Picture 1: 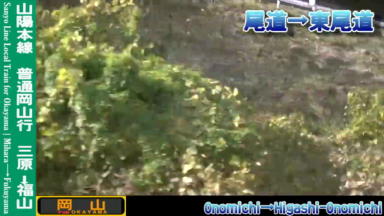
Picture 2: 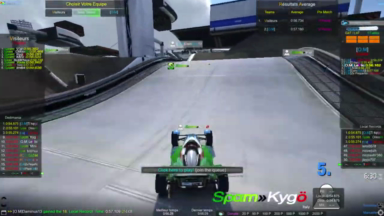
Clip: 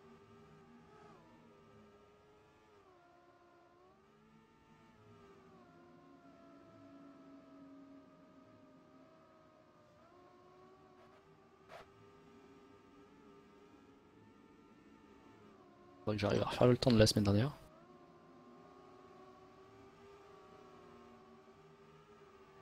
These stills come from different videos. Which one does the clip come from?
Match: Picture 2